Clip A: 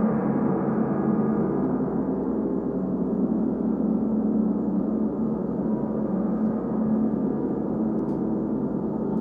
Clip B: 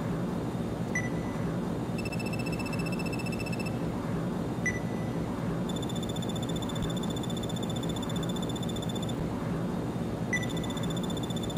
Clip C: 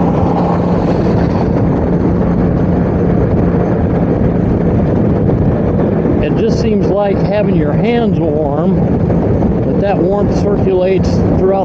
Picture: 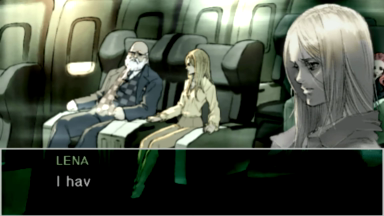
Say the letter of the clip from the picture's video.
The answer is B